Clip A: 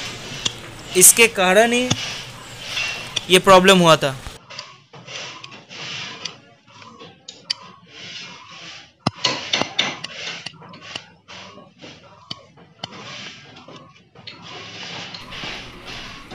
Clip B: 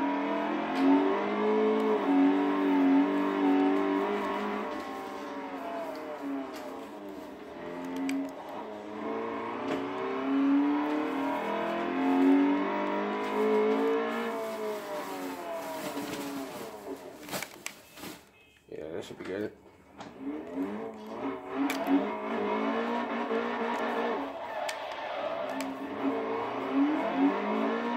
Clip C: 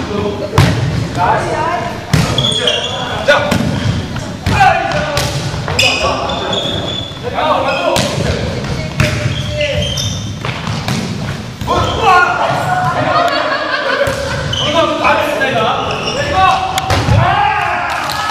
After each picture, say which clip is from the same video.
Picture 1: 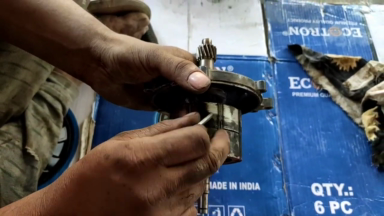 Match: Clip A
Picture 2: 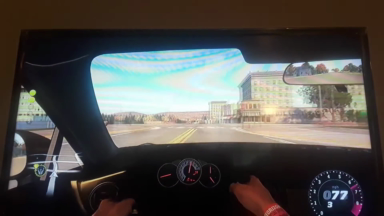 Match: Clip B